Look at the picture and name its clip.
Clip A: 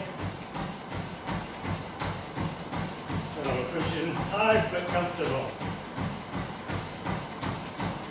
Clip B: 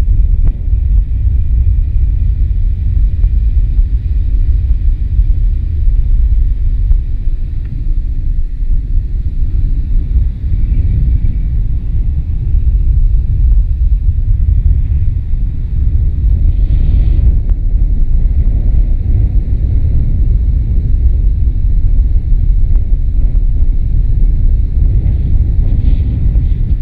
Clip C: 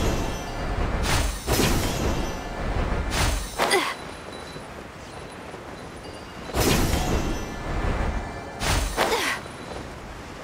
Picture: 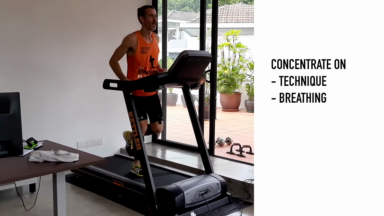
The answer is A